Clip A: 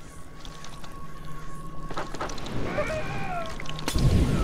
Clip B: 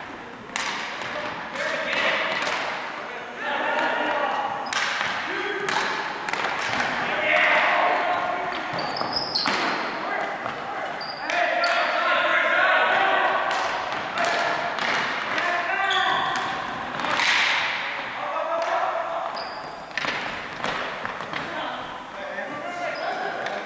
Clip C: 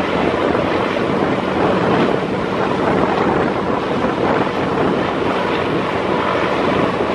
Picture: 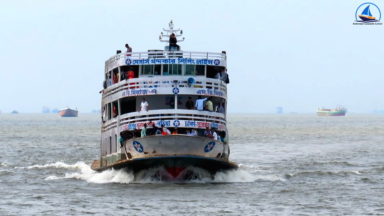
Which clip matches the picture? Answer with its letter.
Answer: C